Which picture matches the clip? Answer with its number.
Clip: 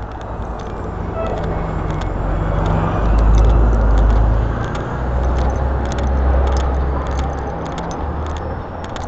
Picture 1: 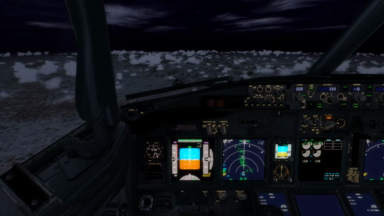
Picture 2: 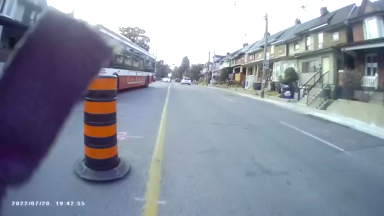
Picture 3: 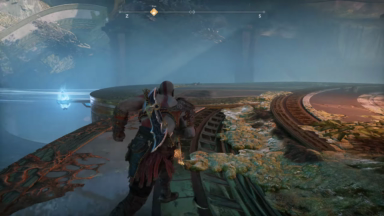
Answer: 2